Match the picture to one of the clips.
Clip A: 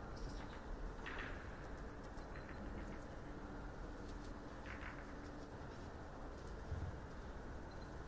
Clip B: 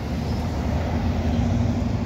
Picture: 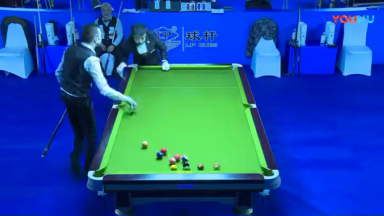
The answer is A